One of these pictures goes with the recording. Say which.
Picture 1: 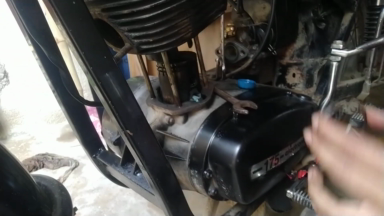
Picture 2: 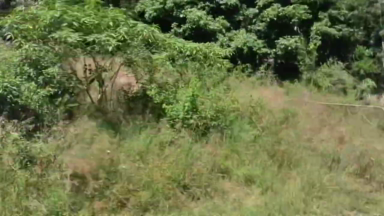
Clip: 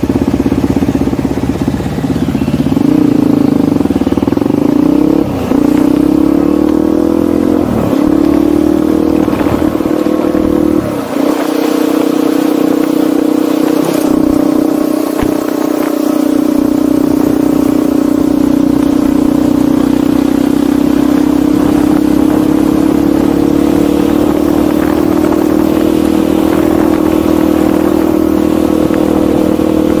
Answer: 2